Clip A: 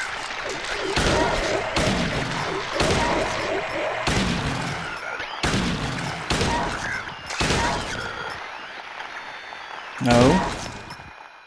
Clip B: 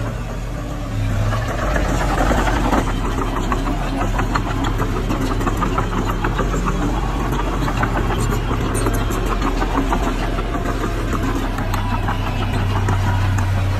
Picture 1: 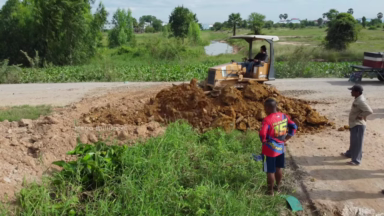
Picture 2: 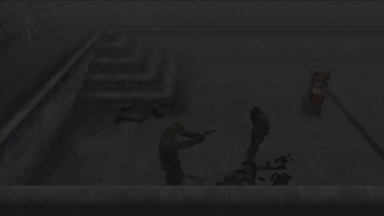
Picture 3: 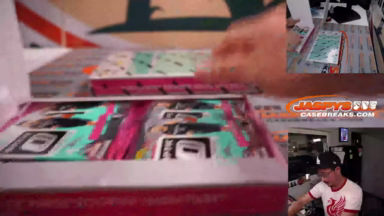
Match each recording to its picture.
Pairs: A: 2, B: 1